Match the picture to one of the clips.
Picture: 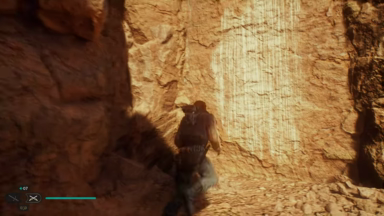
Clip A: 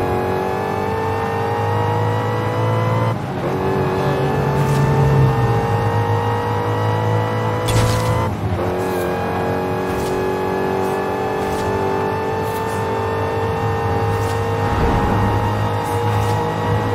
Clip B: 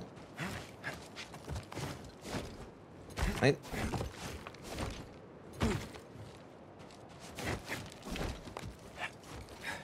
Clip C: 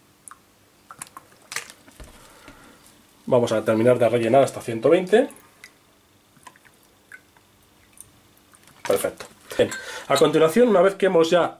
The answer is B